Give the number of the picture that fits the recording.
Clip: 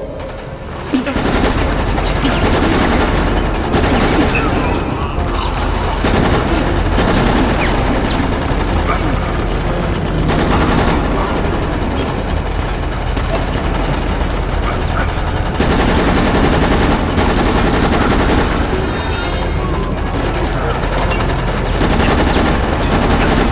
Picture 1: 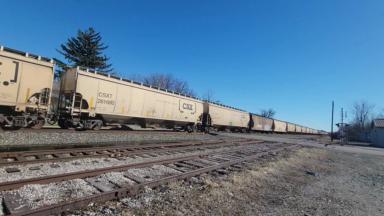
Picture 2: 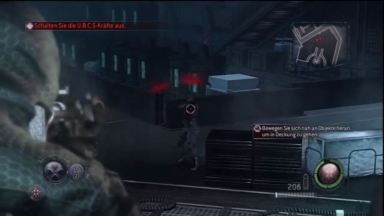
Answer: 2